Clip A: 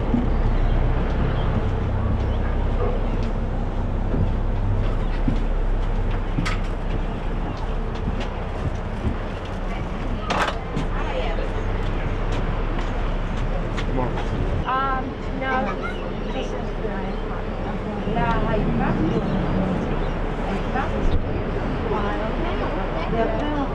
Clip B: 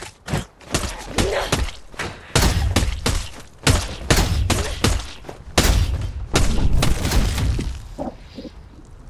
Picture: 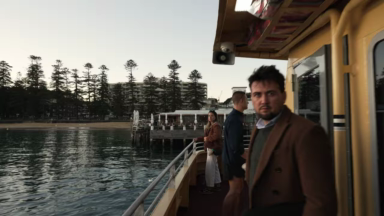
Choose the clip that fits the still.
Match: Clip A